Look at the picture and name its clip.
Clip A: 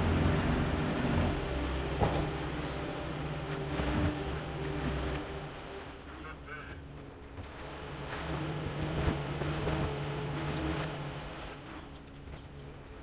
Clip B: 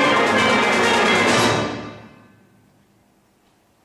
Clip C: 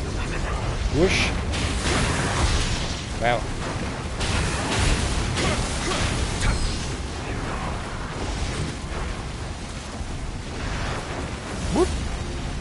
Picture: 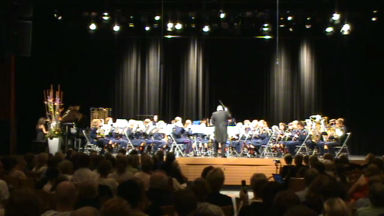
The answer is B